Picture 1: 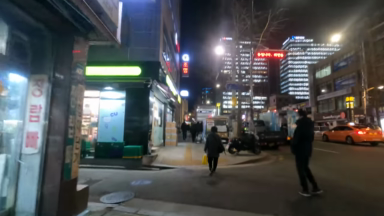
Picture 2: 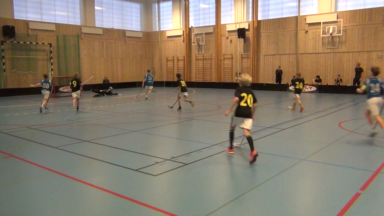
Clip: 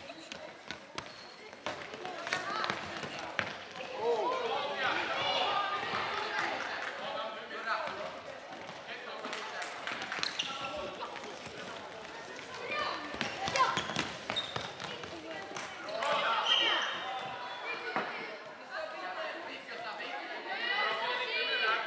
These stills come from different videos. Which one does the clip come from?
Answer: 2